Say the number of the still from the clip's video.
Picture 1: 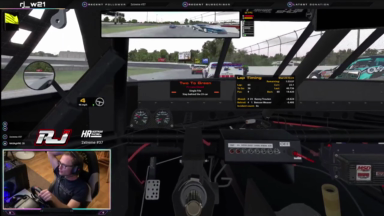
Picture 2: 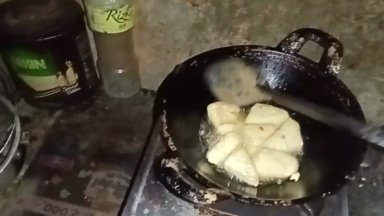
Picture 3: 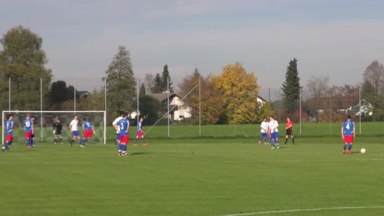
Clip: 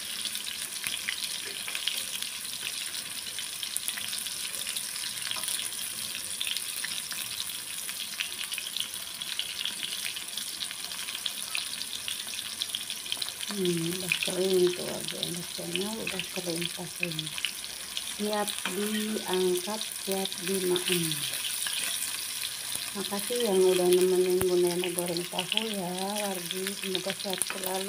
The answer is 2